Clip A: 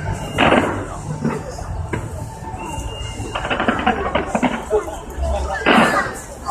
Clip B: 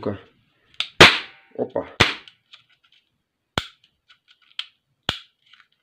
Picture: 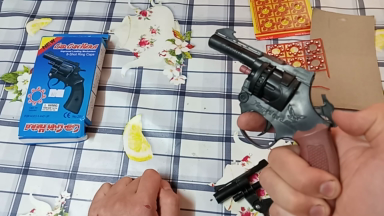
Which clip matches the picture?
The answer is B